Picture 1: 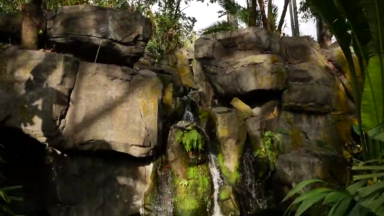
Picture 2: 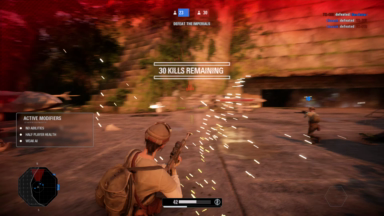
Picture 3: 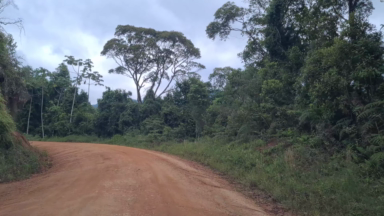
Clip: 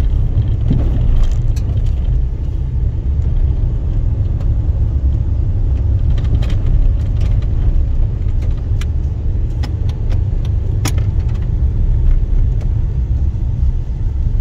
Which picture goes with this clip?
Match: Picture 3